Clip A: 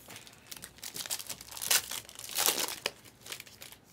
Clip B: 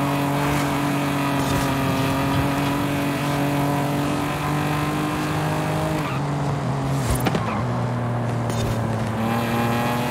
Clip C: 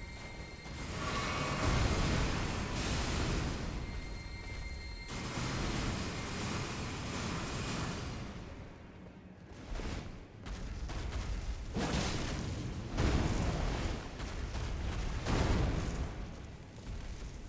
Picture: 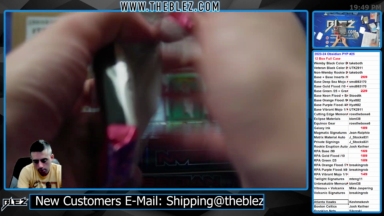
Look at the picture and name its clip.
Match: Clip A